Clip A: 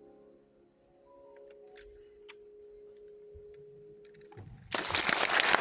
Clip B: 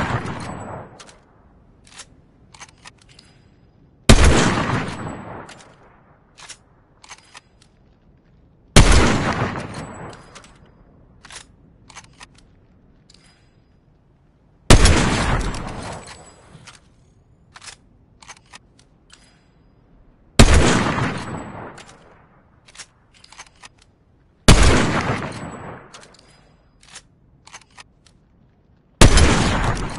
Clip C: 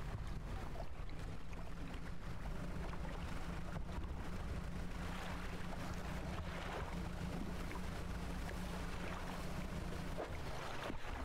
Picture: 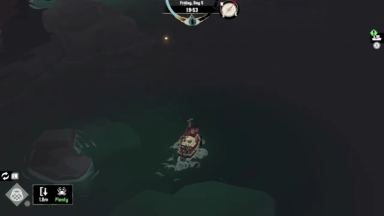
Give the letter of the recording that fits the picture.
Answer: C